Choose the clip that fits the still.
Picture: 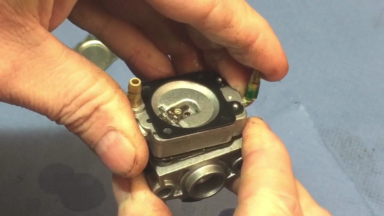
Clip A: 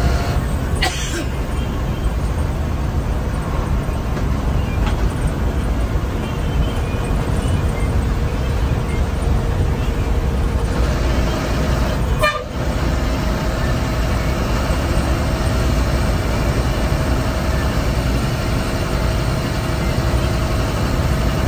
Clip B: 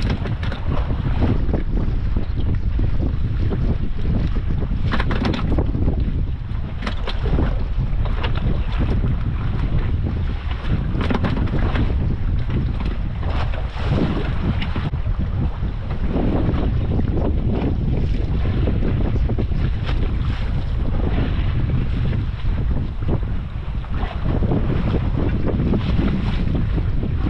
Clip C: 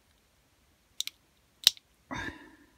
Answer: C